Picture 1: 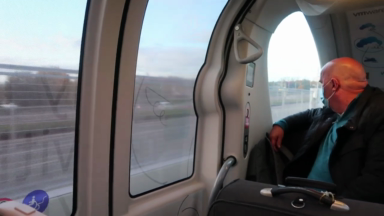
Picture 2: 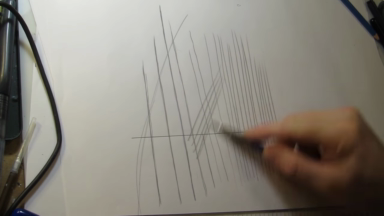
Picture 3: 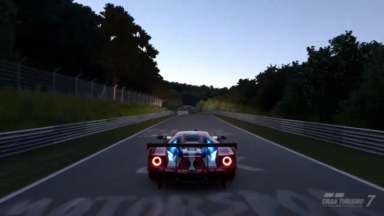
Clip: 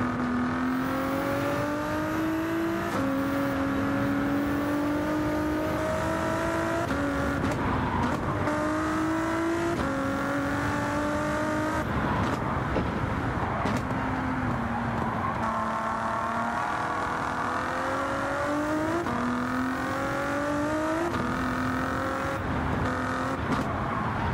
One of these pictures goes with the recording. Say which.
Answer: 3